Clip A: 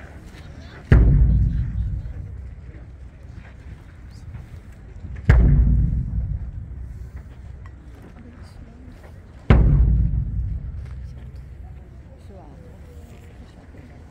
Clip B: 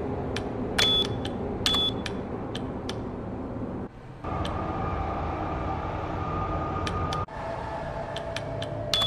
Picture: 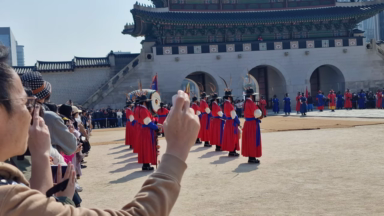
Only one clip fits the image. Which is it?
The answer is A